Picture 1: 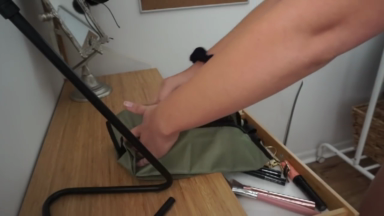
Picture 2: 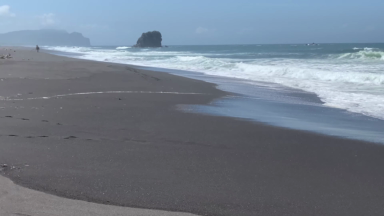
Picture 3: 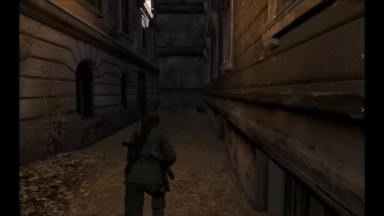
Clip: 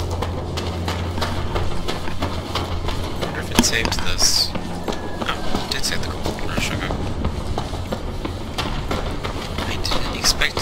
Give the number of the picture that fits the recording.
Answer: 3